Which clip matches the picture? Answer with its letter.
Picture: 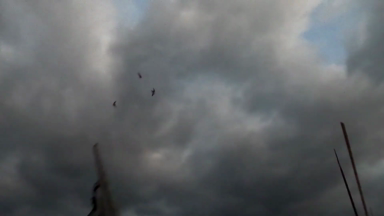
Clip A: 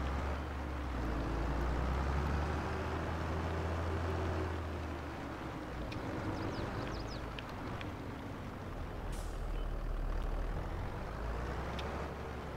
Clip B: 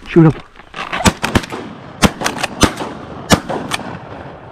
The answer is B